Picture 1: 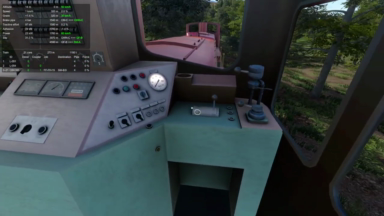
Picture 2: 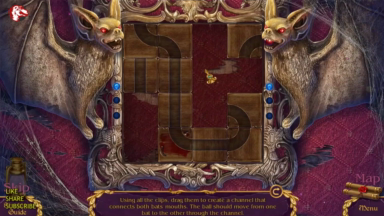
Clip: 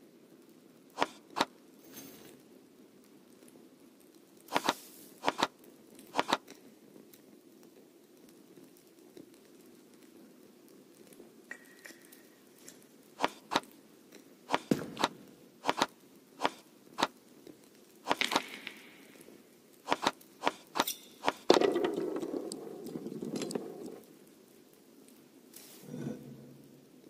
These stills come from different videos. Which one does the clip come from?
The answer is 2